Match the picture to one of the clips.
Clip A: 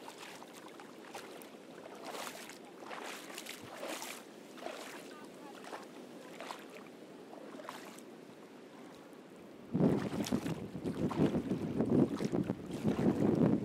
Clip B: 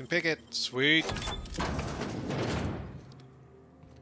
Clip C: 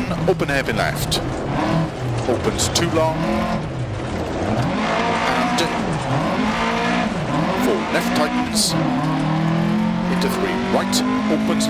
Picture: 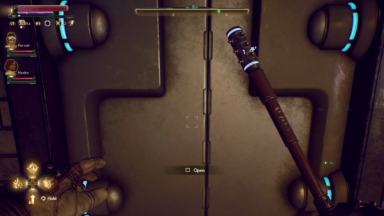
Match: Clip B